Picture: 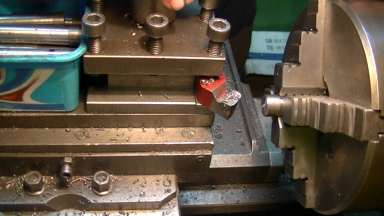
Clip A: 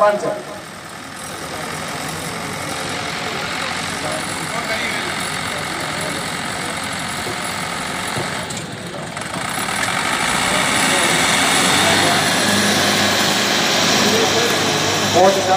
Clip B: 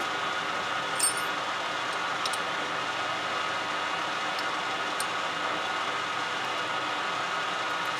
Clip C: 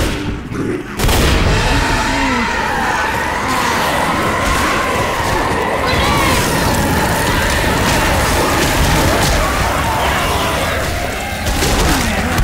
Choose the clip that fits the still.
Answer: B